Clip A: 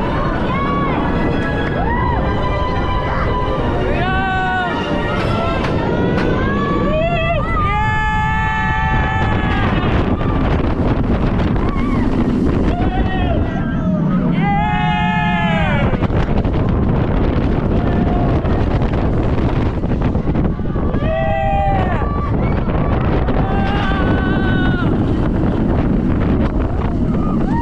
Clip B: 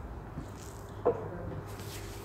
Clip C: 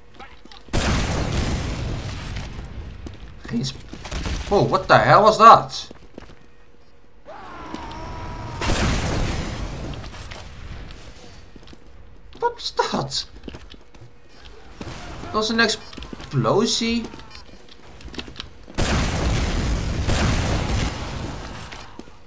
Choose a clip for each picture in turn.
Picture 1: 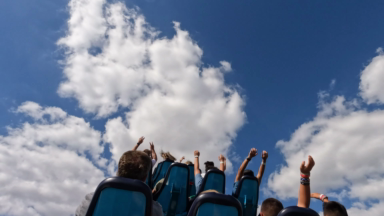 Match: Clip A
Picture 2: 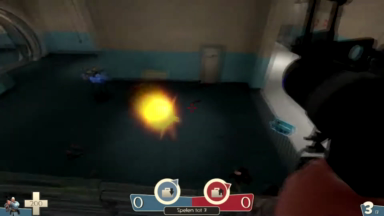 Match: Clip C